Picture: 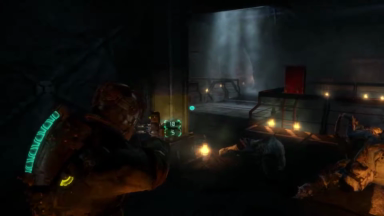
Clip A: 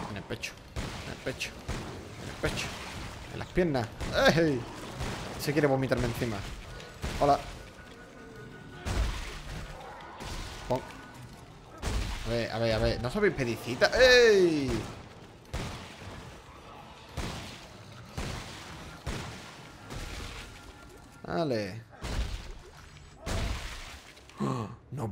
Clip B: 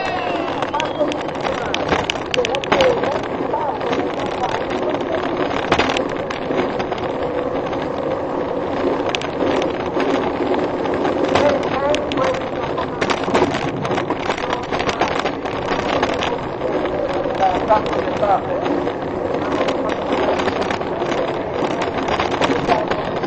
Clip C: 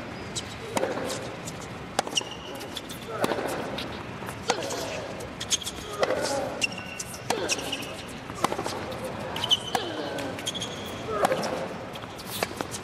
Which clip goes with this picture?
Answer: A